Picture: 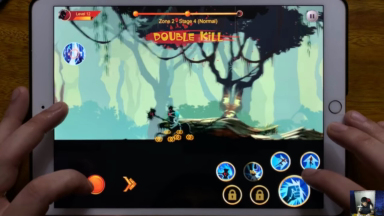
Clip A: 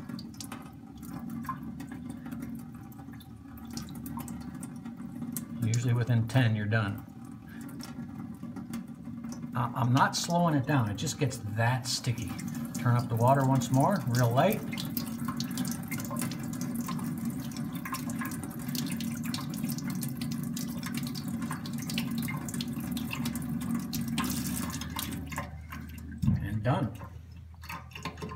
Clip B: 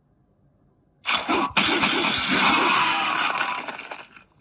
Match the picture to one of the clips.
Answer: B